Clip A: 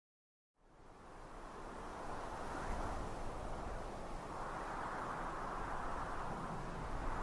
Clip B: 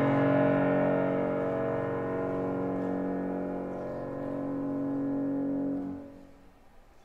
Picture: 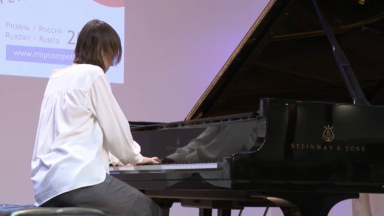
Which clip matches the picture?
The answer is B